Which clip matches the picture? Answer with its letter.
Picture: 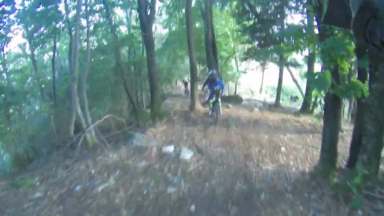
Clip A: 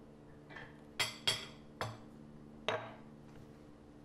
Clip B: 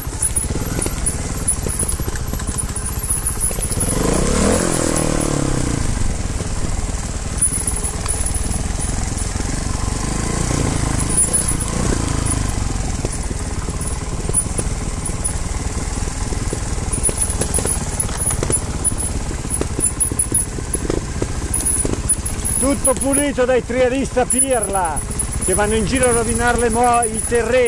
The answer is B